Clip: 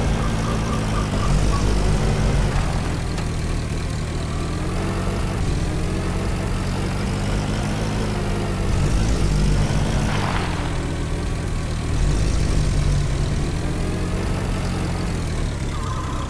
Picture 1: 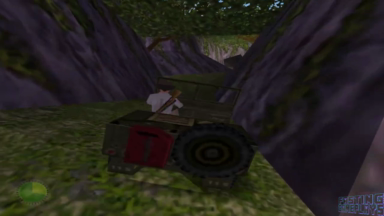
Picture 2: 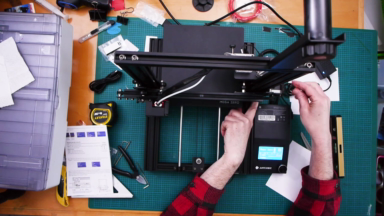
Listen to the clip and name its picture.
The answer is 1